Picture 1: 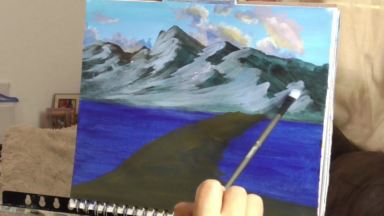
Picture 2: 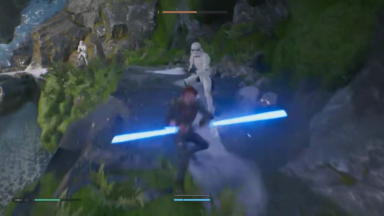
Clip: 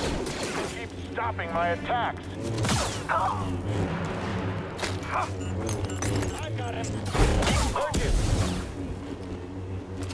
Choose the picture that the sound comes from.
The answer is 2